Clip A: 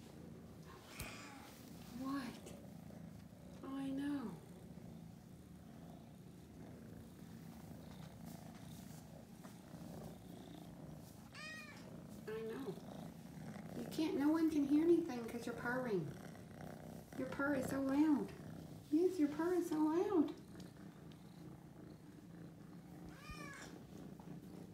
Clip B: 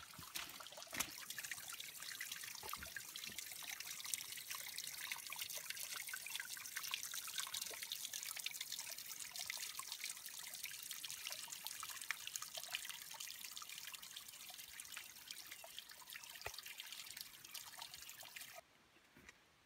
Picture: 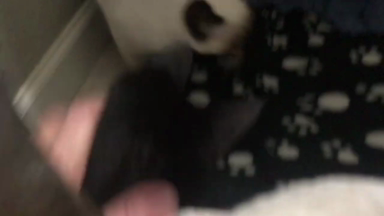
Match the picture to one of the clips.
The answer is A